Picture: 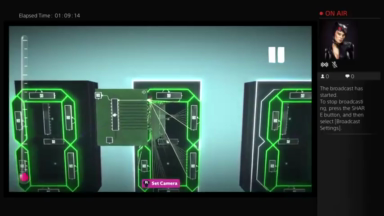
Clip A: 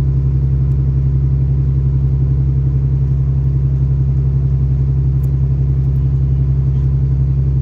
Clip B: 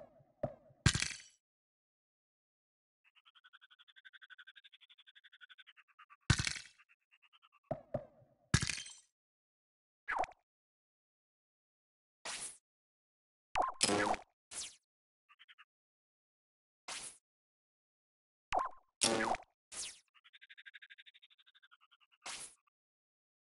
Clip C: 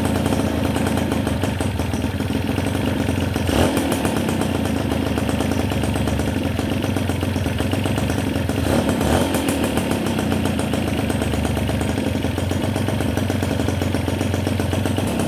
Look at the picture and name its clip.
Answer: B